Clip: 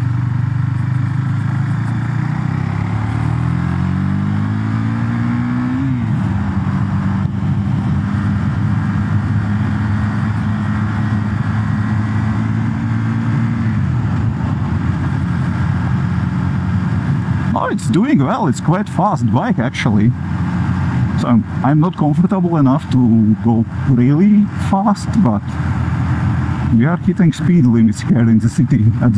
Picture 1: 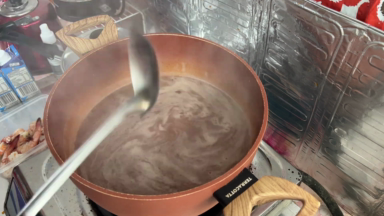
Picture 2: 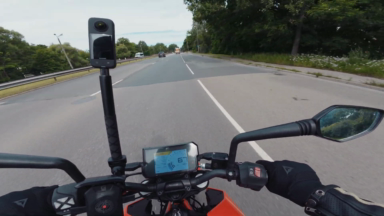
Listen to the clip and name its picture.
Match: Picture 2